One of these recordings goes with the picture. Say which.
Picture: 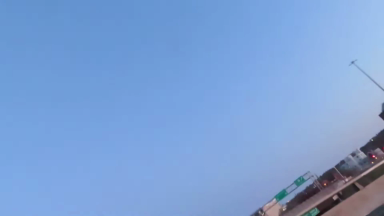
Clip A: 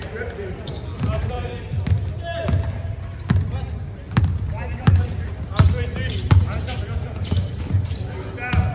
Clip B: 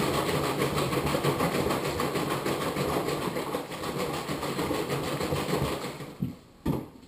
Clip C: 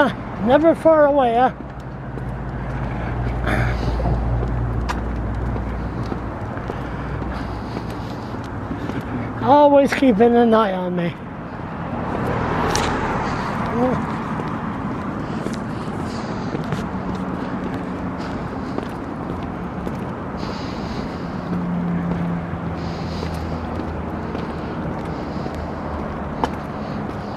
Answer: C